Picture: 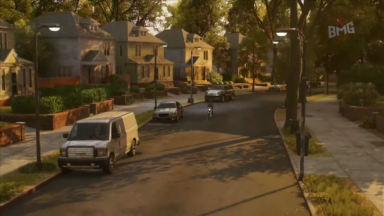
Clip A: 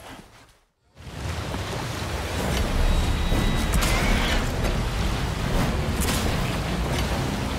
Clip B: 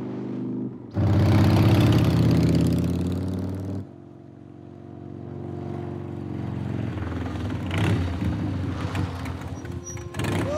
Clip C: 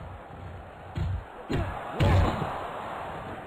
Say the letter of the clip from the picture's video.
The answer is B